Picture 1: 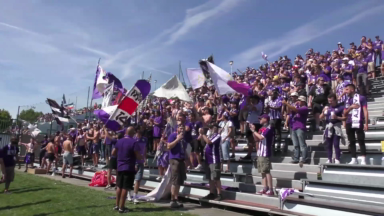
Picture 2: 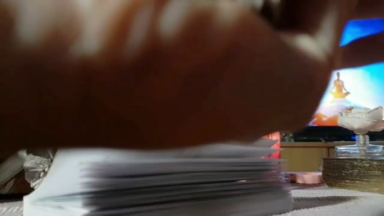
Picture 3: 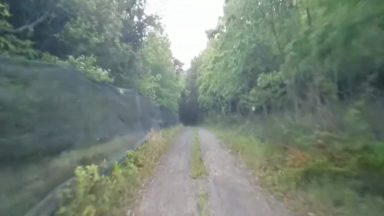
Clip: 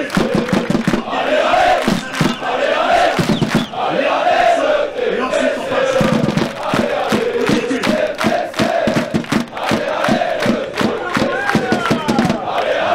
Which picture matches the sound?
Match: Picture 1